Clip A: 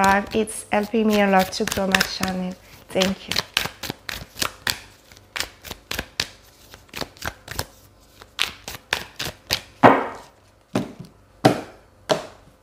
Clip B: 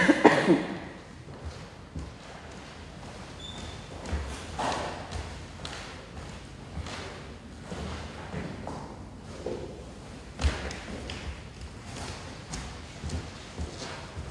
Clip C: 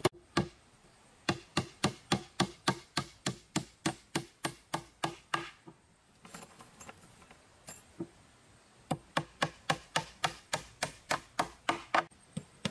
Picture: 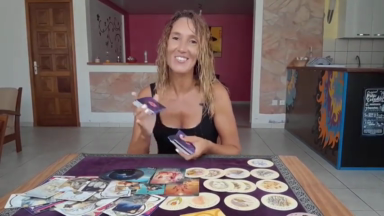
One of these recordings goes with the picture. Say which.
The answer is A